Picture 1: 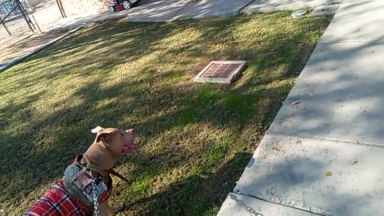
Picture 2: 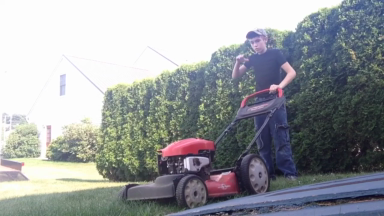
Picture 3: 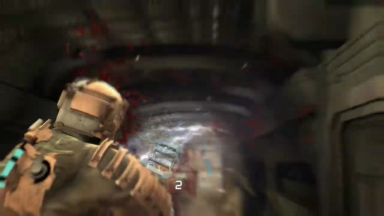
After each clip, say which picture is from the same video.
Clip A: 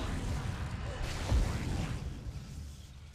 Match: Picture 3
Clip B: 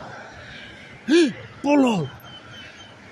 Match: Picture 1